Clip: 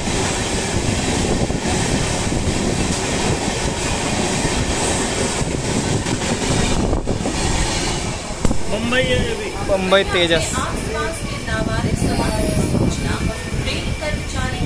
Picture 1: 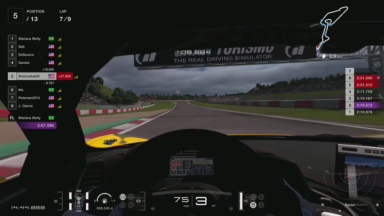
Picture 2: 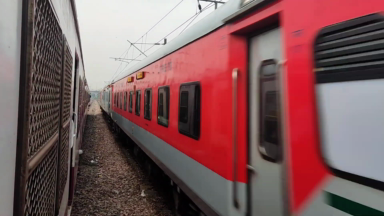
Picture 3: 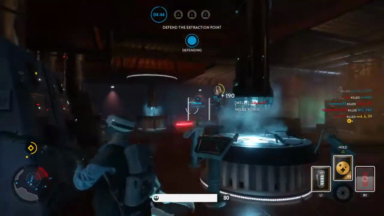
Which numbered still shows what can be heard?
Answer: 2